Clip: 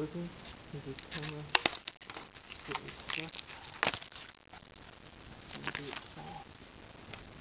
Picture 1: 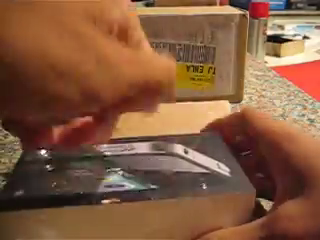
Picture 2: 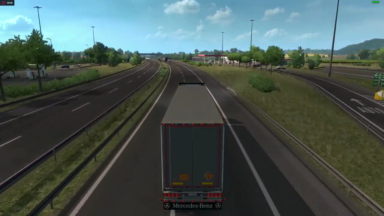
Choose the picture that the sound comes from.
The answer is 1